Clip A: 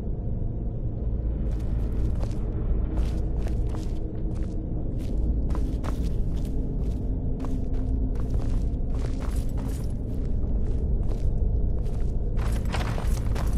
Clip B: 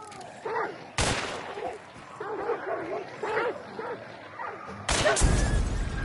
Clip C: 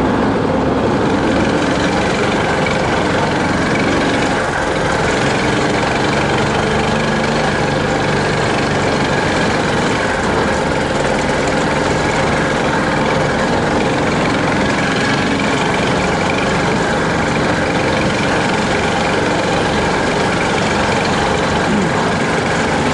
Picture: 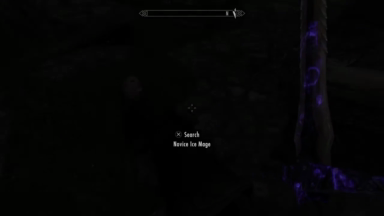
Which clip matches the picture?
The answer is A